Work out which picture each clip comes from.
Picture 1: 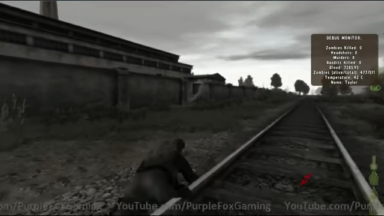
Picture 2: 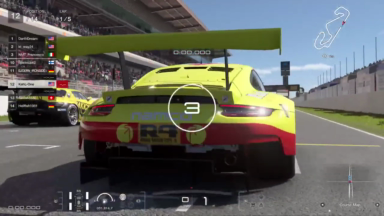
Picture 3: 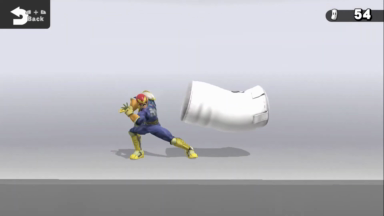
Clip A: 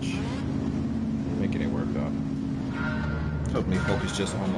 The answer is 2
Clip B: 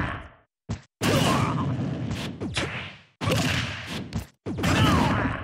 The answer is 3